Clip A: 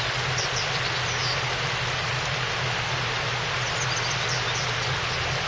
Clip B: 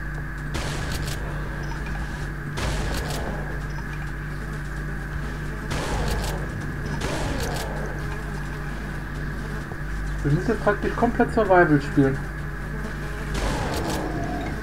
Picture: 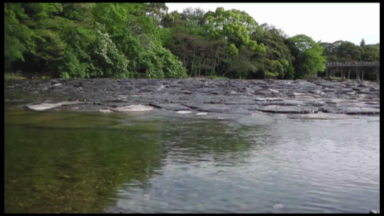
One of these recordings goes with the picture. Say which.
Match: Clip A